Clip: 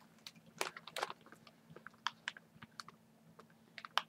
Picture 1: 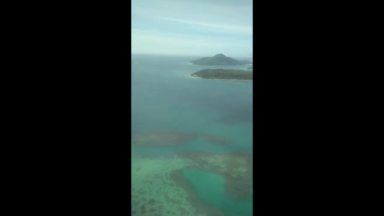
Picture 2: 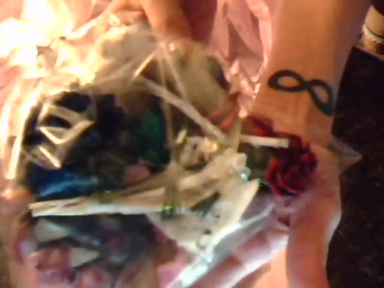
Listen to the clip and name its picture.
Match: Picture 2